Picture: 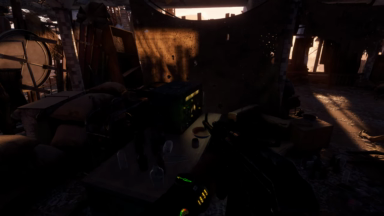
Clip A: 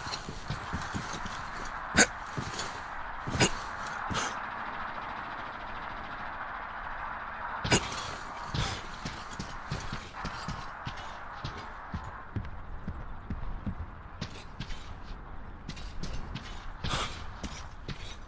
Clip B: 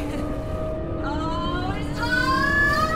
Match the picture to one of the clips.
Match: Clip A